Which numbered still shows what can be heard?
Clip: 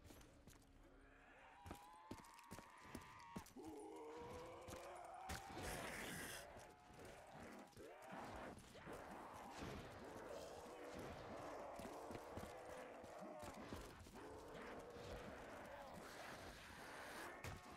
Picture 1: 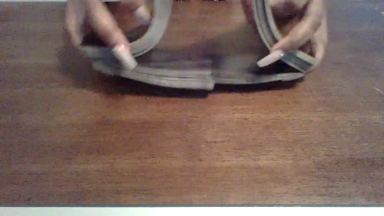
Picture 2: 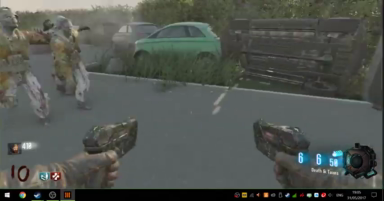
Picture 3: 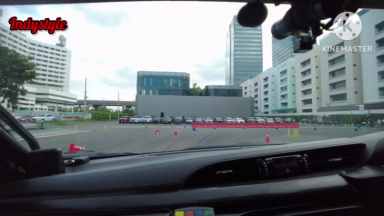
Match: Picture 2